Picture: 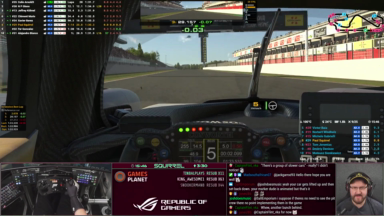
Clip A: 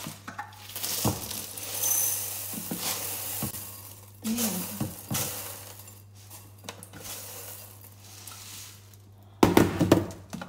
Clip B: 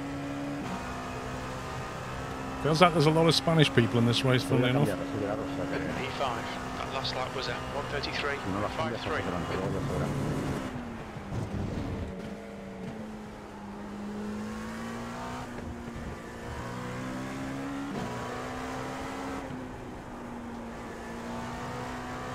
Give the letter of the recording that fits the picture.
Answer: B